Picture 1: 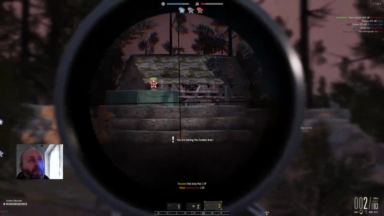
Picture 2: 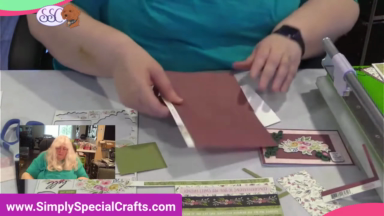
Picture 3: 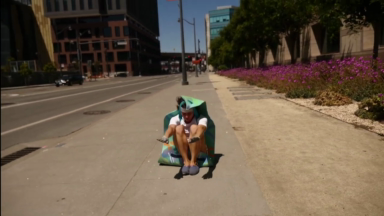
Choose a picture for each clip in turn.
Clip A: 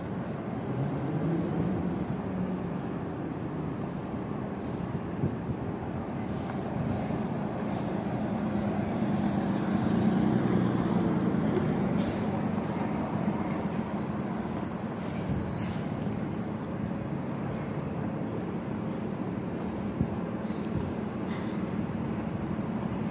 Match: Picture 3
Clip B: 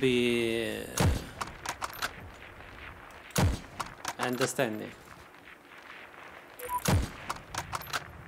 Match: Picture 1